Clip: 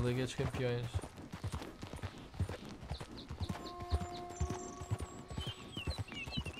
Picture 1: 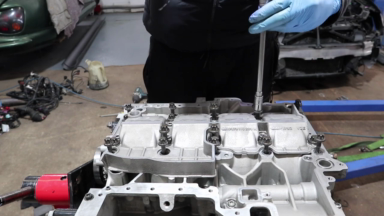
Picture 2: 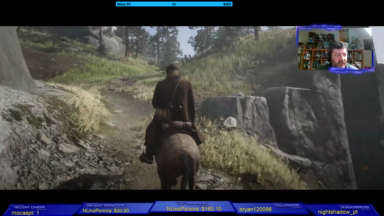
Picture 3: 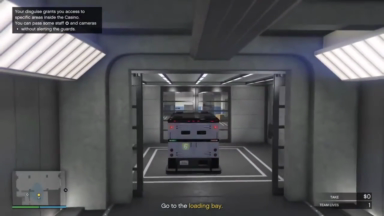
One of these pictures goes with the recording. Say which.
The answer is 2